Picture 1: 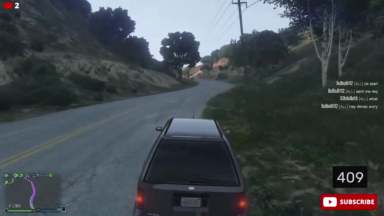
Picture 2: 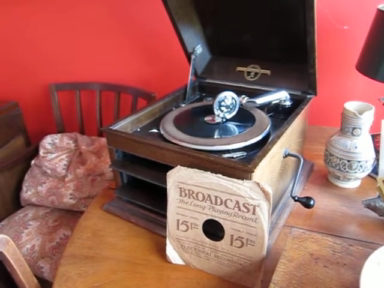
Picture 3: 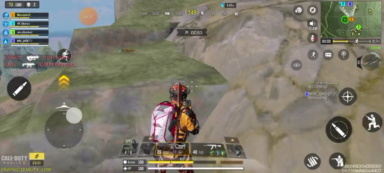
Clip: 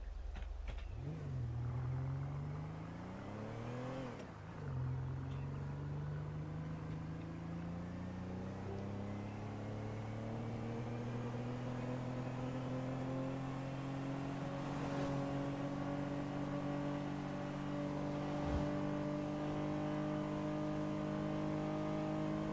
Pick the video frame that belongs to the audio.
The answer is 1